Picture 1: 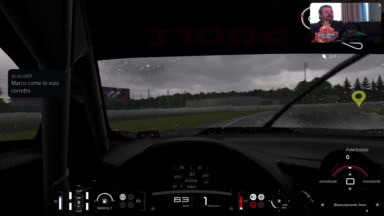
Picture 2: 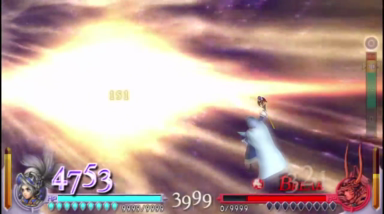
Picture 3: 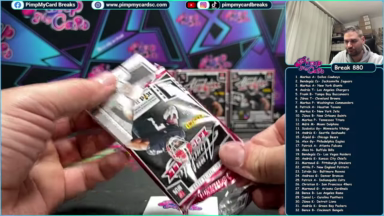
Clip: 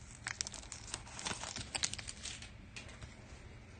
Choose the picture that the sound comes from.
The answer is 3